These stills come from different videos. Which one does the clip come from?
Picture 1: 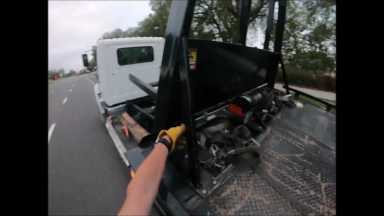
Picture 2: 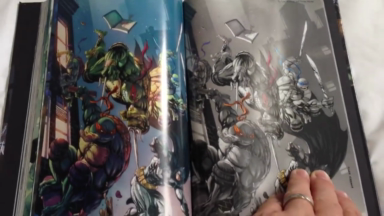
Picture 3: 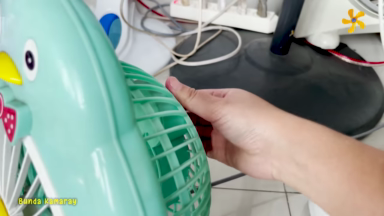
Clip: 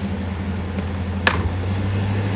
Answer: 3